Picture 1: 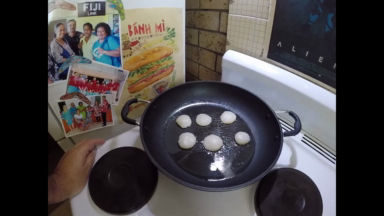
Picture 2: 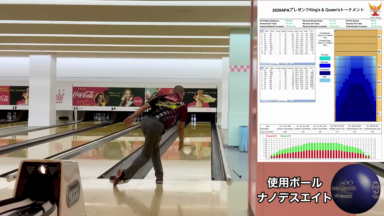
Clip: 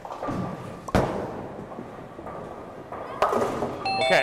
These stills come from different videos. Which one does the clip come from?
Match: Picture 2